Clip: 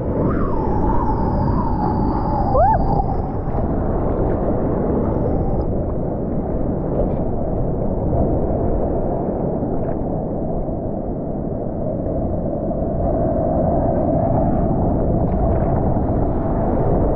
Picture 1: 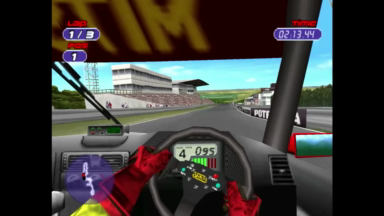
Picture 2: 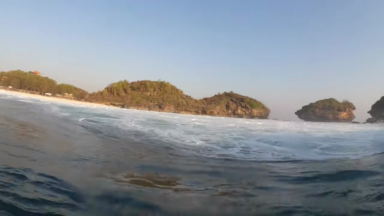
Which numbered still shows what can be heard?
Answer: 2